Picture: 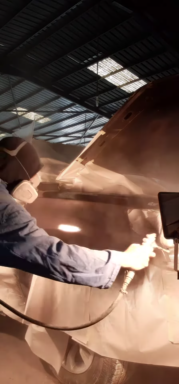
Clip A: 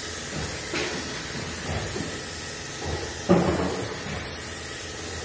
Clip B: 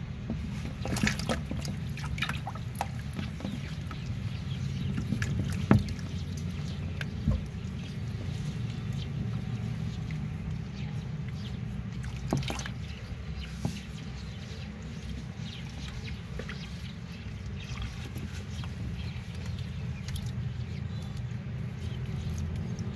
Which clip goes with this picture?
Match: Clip A